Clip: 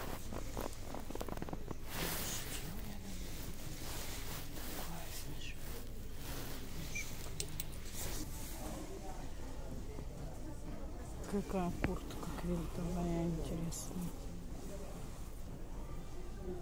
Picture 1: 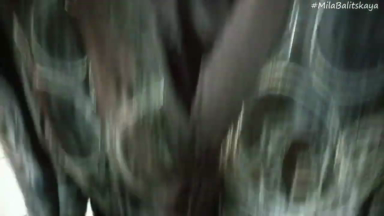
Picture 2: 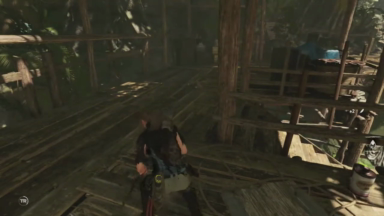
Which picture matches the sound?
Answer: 1